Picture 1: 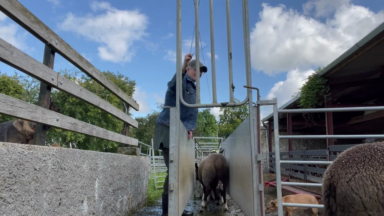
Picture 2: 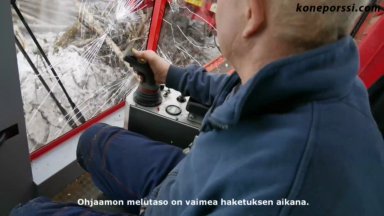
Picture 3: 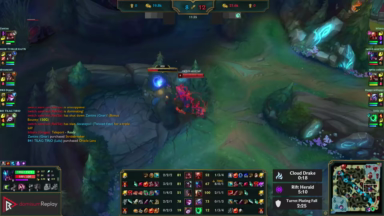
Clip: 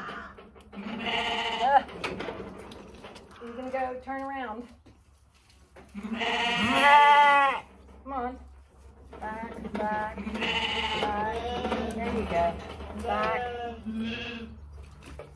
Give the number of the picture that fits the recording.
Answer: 1